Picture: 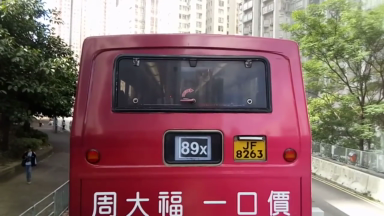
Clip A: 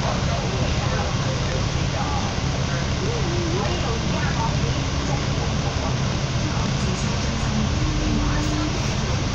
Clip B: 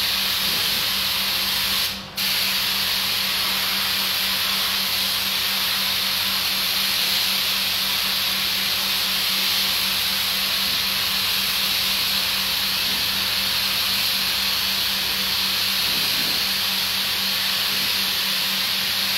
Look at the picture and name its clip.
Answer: A